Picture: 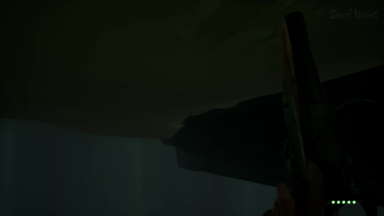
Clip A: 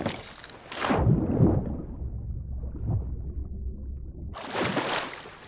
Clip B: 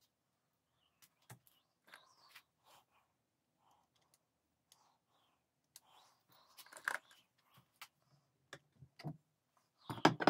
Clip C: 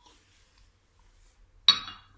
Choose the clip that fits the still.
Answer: A